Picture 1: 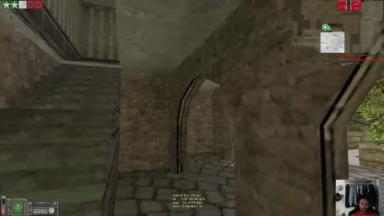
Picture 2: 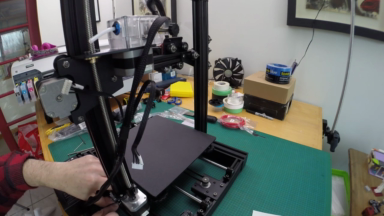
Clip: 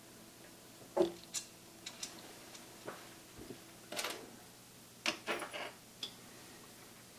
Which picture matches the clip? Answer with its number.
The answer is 2